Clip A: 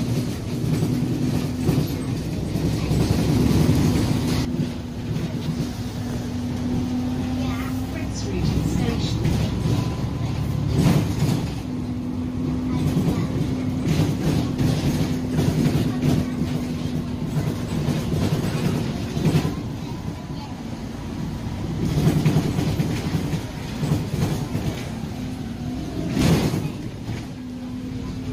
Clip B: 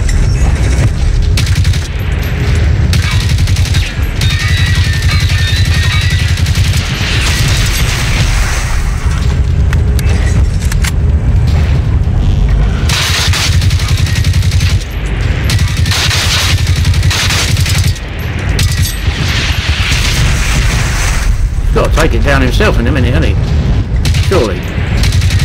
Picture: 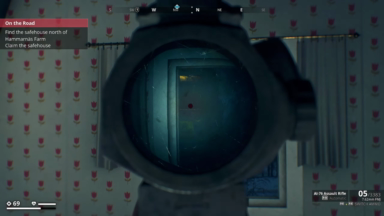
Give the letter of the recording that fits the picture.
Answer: B